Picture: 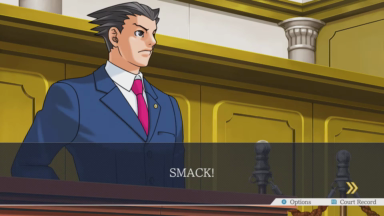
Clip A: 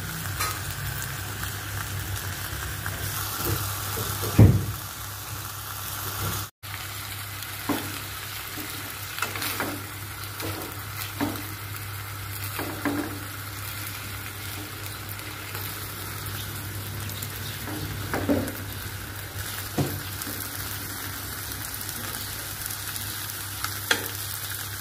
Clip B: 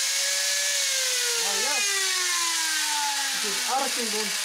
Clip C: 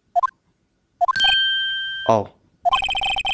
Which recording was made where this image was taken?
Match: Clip C